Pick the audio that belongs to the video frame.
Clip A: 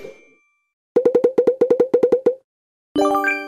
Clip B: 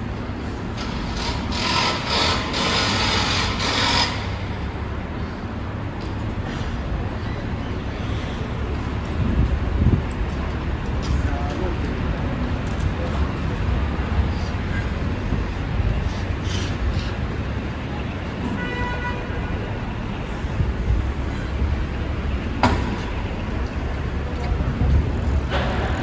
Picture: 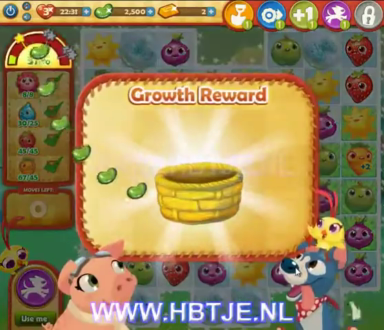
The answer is A